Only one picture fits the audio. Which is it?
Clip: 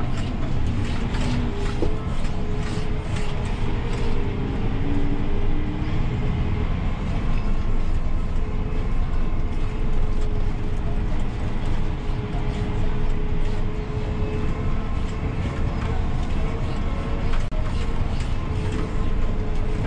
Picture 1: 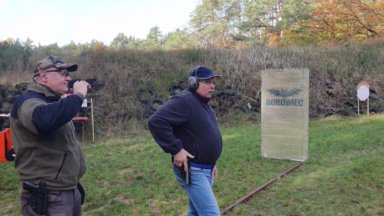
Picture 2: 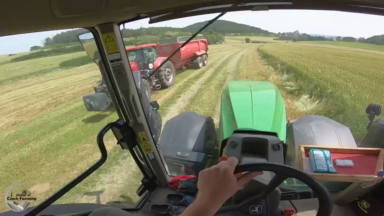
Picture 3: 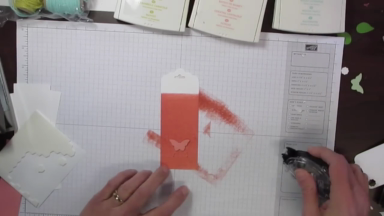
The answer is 2